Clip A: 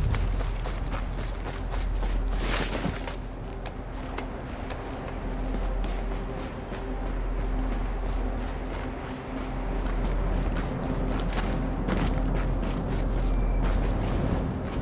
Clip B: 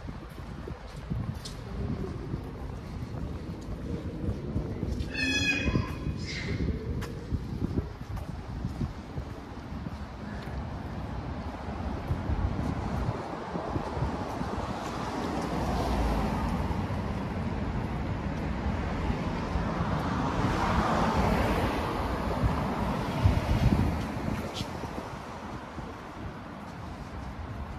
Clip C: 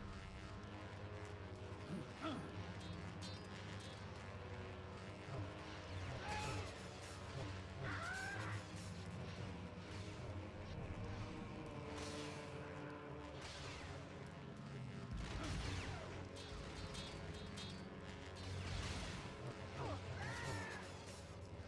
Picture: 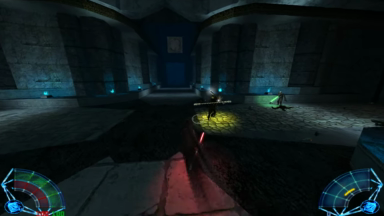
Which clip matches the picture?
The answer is C